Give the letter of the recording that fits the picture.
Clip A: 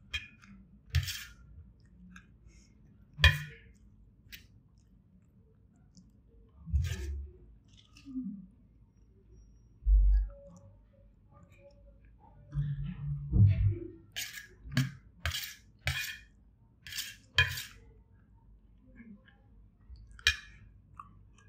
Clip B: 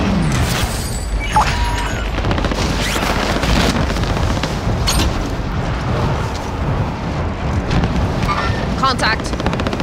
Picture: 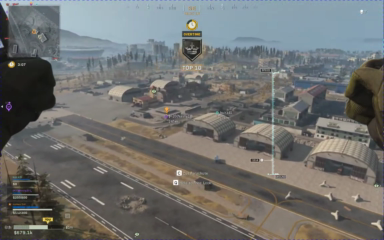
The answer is B